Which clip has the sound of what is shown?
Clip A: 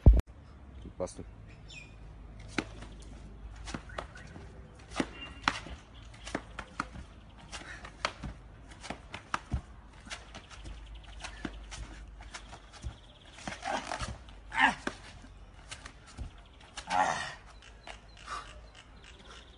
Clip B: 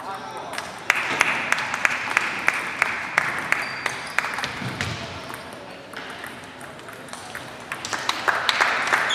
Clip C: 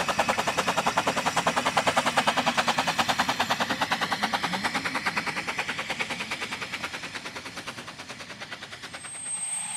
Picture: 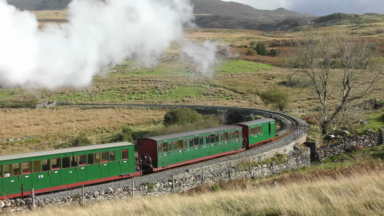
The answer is C